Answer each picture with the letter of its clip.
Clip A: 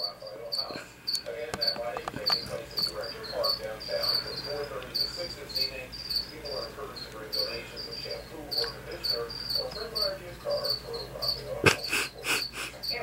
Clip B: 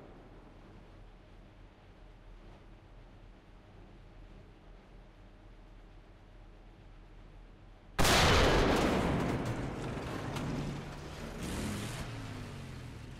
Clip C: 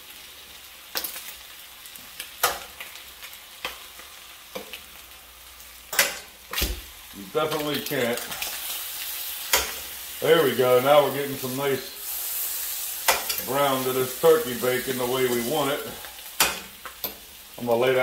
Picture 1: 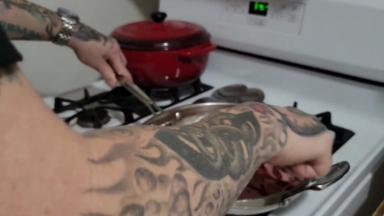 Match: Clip C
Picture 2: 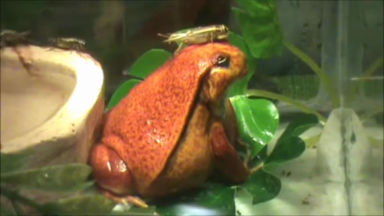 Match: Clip A